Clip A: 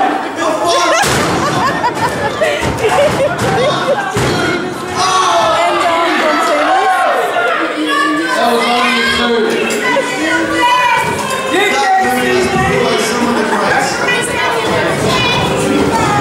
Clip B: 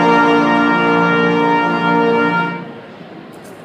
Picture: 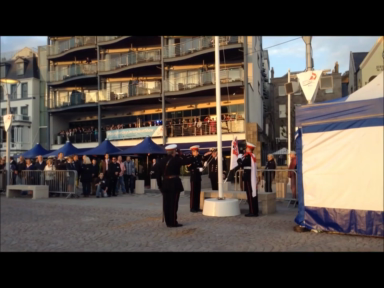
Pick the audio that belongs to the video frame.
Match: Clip B